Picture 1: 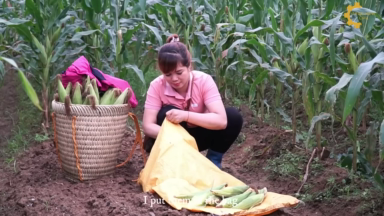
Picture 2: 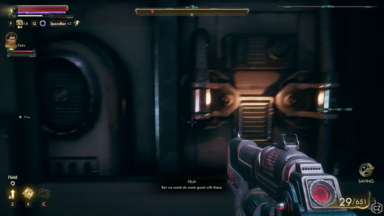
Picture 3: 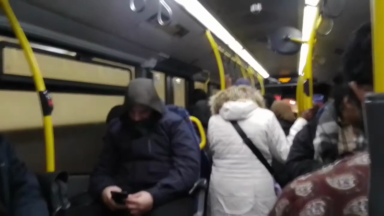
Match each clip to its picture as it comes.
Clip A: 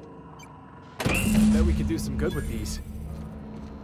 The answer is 2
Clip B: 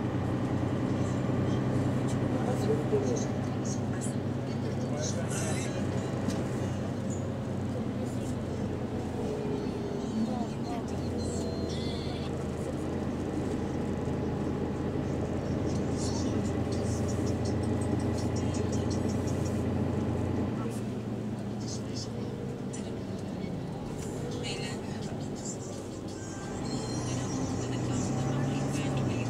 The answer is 3